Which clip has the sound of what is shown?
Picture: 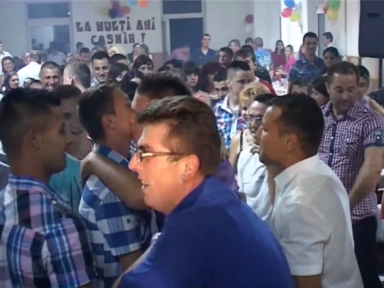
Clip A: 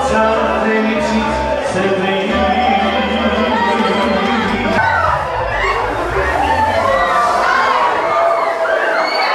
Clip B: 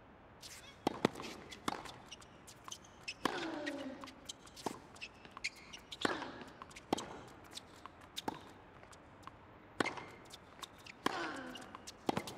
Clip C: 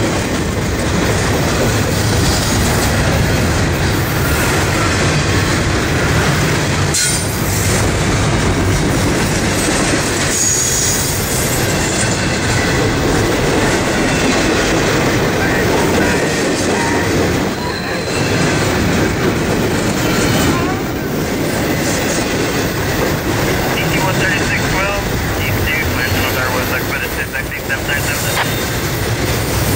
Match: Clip A